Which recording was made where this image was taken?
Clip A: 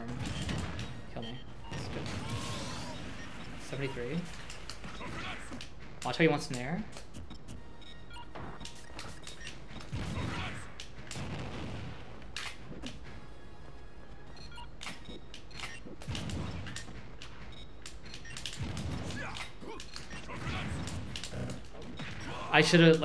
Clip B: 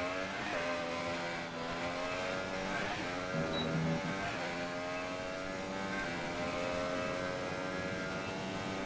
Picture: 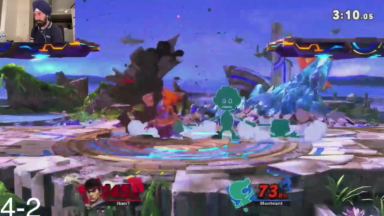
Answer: A